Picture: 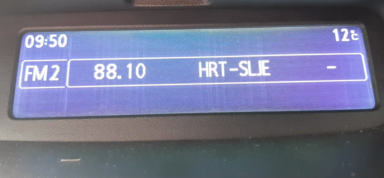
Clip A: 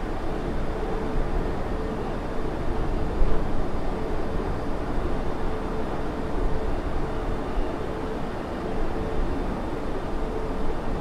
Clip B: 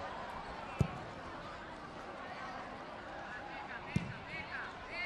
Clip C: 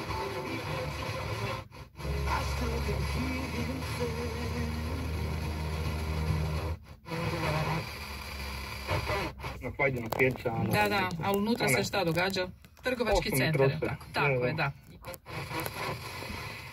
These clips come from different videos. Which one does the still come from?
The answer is C